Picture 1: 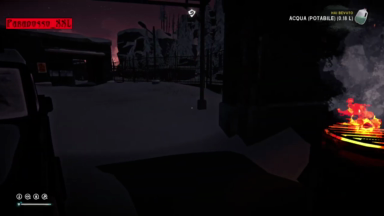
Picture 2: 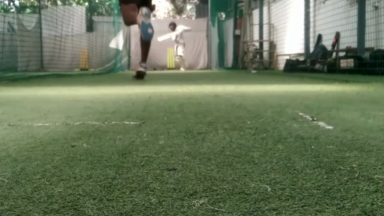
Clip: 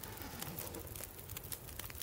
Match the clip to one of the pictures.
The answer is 1